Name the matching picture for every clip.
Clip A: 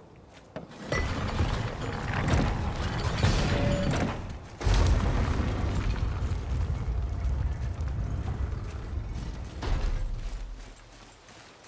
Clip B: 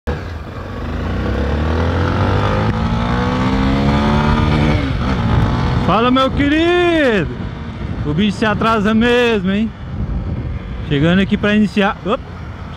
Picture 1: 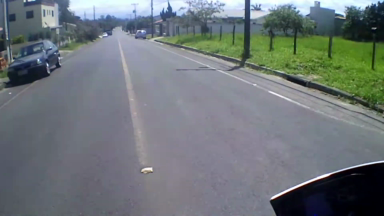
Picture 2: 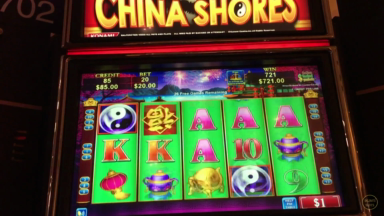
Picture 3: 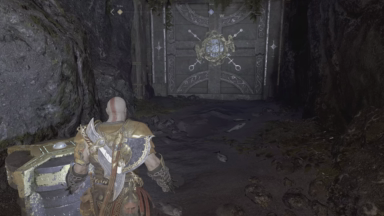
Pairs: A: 3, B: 1